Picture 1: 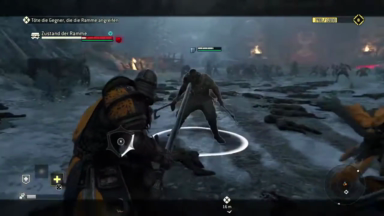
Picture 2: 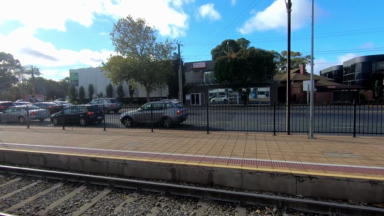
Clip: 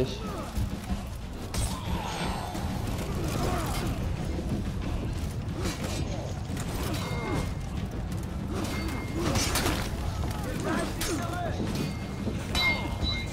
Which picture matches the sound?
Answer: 1